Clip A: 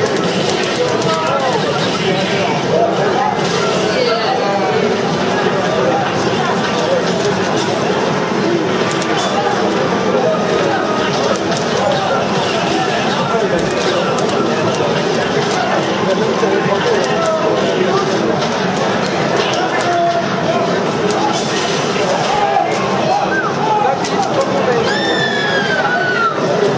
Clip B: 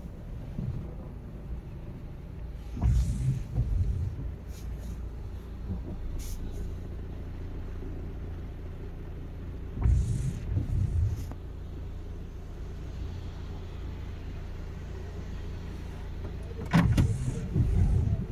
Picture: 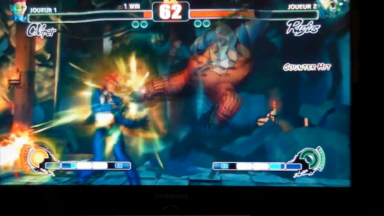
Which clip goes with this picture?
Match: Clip A